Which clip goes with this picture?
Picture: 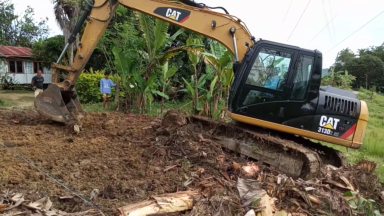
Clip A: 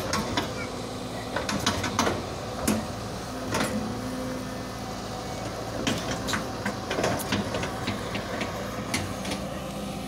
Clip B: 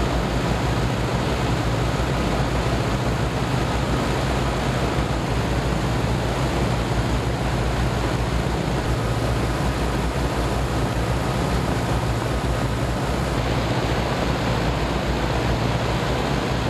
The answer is A